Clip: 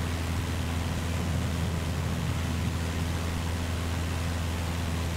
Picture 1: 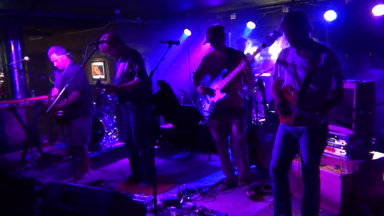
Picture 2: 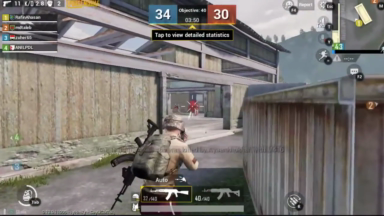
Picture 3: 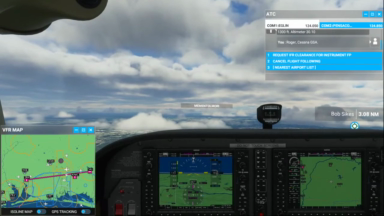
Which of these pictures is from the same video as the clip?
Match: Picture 3